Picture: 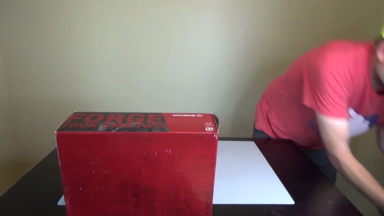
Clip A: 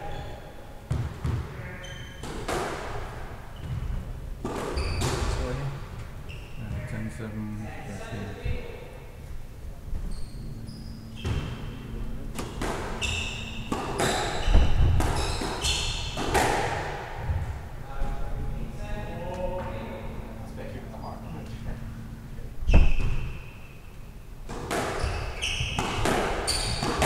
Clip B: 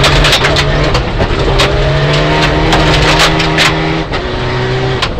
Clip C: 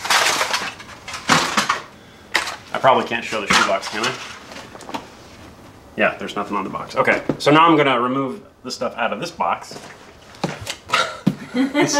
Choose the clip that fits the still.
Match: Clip C